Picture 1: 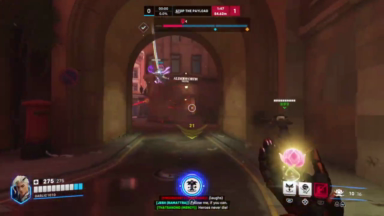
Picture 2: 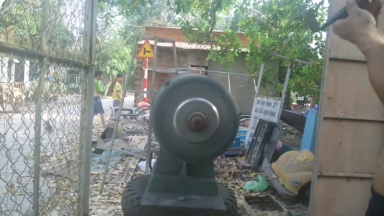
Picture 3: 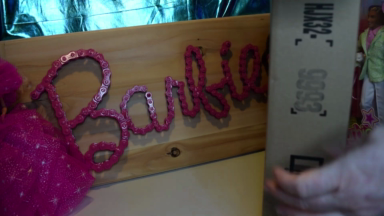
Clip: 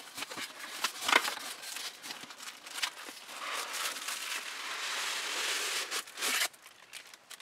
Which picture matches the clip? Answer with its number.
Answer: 3